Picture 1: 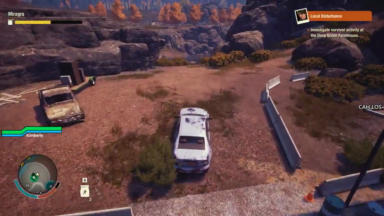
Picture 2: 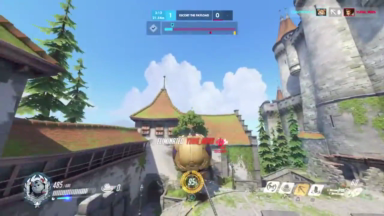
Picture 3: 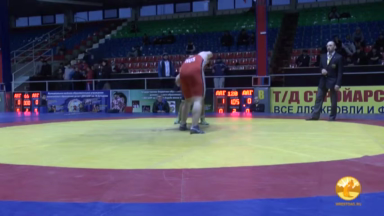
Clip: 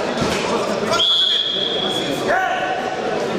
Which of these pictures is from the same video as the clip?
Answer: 3